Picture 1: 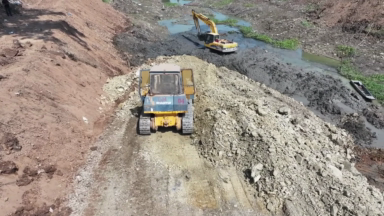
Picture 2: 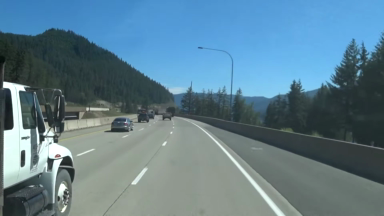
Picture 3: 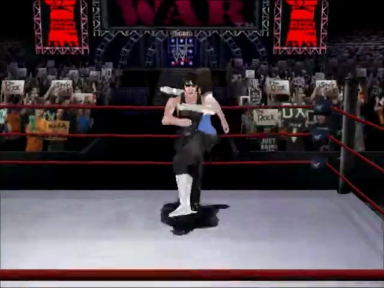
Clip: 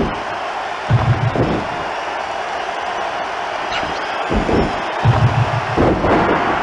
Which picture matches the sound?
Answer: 3